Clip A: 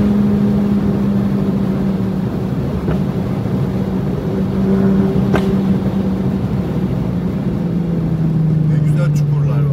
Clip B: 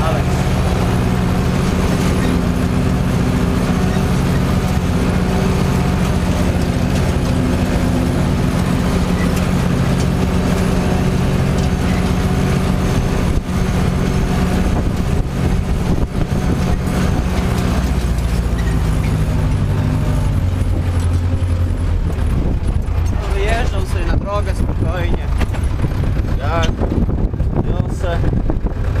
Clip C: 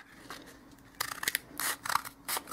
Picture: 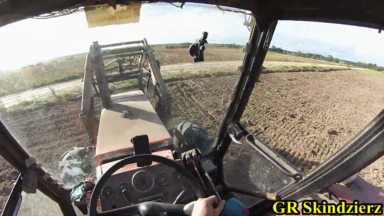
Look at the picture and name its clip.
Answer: B